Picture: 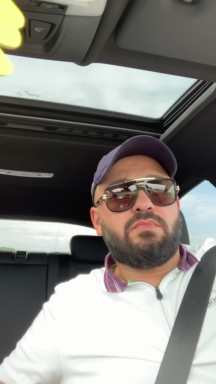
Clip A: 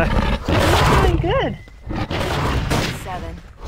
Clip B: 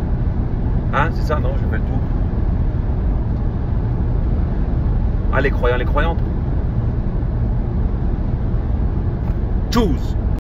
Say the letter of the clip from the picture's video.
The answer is B